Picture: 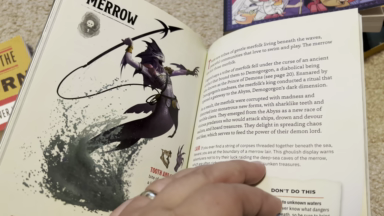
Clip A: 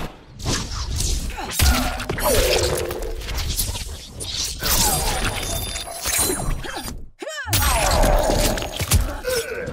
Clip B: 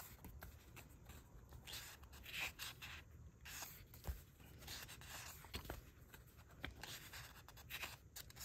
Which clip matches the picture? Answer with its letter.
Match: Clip B